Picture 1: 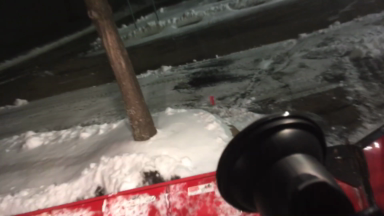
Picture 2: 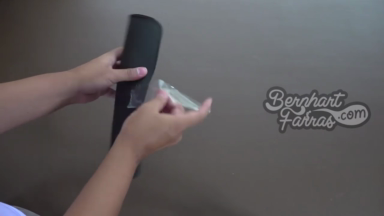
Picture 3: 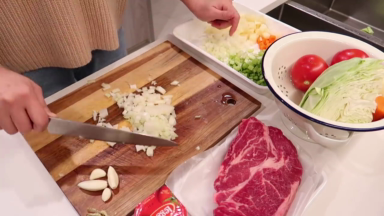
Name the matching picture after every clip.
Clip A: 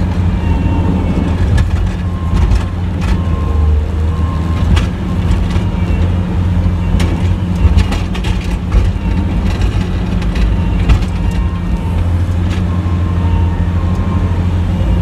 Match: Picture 1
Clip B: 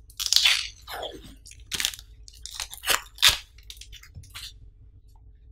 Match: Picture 2